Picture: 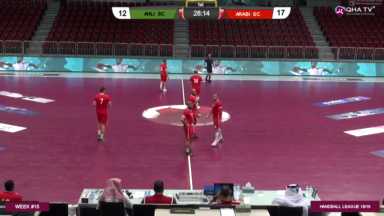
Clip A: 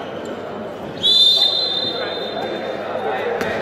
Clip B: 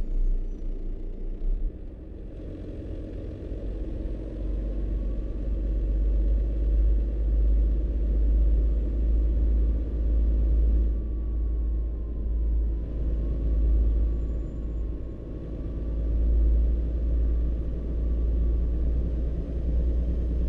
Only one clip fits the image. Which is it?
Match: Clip A